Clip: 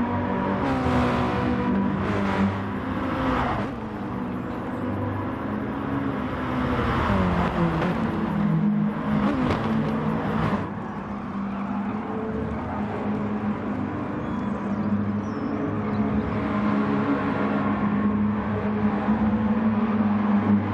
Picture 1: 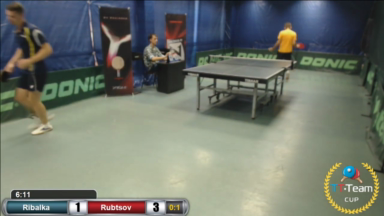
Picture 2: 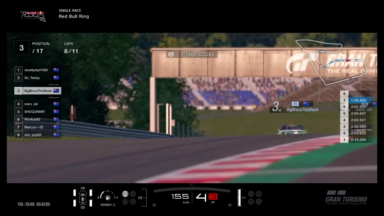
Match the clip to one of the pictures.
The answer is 2